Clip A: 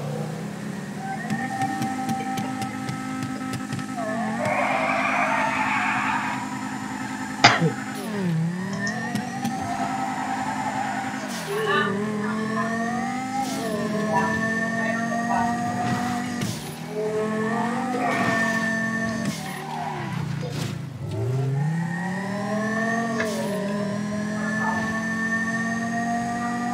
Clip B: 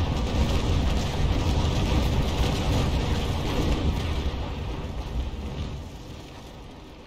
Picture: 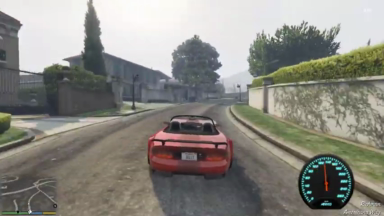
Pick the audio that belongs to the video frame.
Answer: A